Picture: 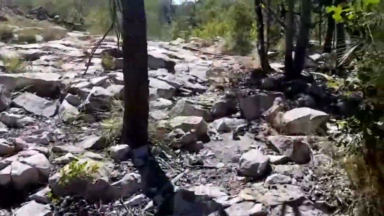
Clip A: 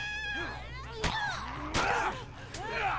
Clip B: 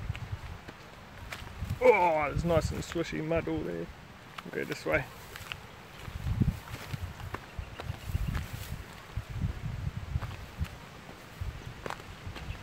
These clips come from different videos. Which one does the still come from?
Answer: B